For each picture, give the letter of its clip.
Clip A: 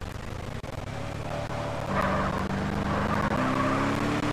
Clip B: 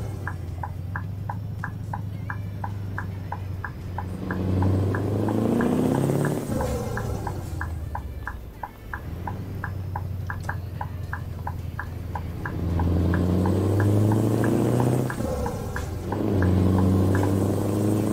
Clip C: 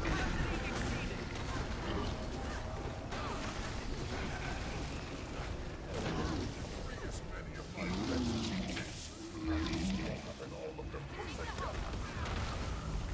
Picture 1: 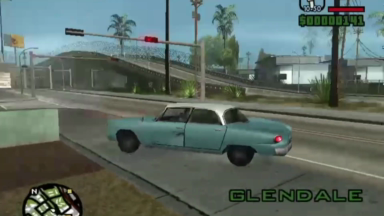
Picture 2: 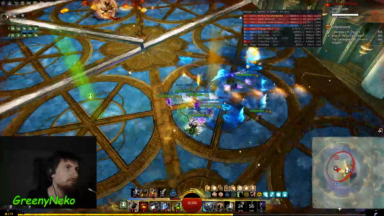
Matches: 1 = A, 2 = C